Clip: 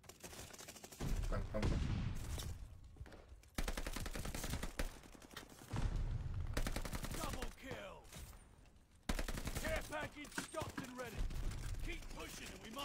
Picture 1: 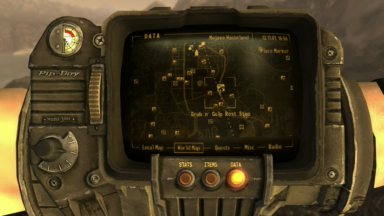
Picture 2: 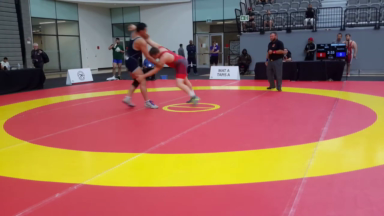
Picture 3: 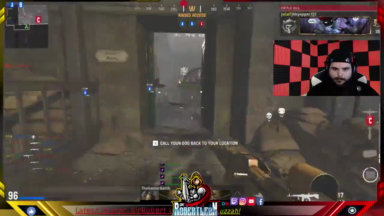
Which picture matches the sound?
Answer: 3